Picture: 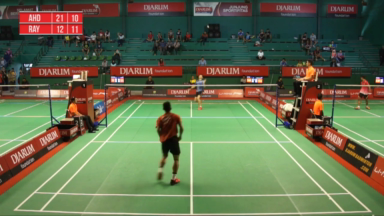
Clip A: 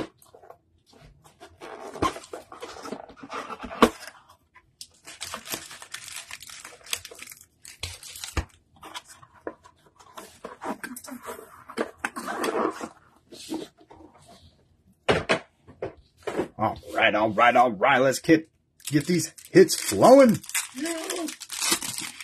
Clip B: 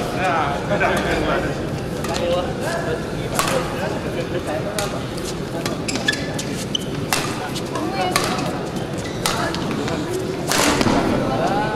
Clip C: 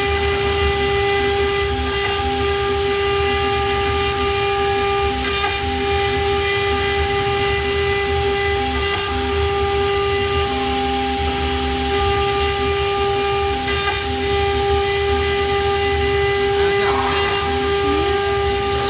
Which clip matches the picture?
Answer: B